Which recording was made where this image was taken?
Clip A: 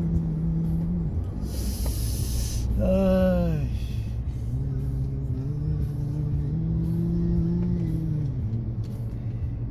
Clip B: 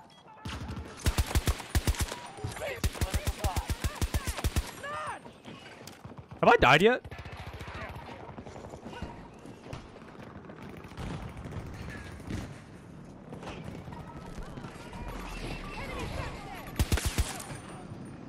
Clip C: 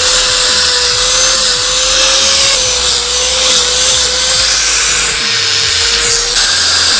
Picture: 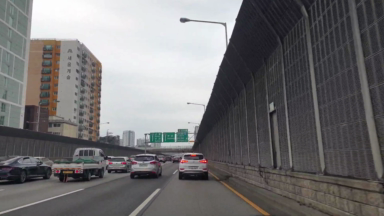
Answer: A